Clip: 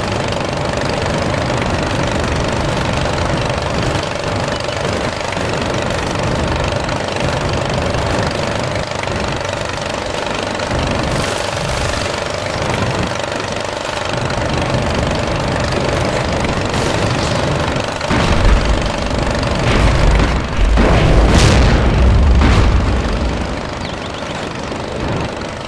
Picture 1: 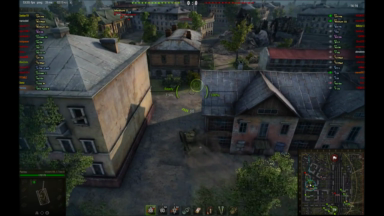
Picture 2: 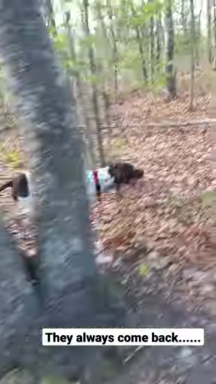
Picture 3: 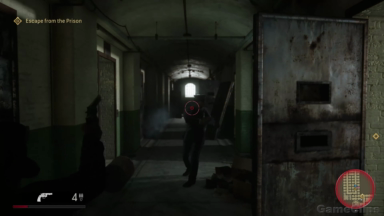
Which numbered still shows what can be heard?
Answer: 1